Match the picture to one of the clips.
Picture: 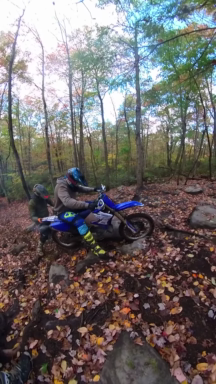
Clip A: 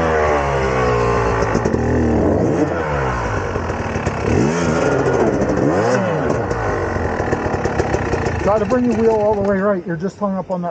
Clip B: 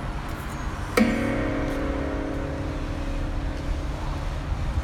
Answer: A